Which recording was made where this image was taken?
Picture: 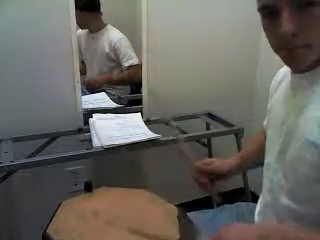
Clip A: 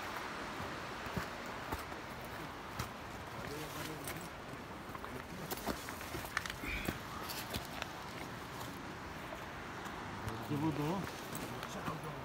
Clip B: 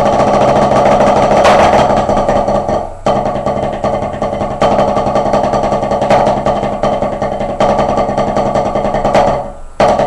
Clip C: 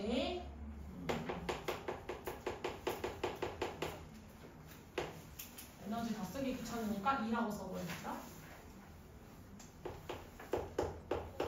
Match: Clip B